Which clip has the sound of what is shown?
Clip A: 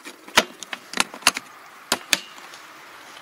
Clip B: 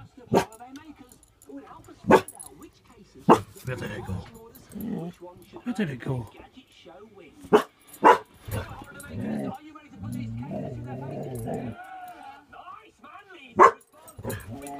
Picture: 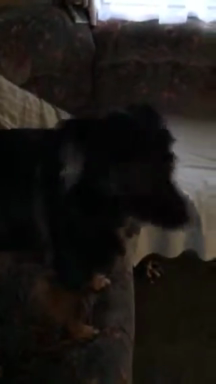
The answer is B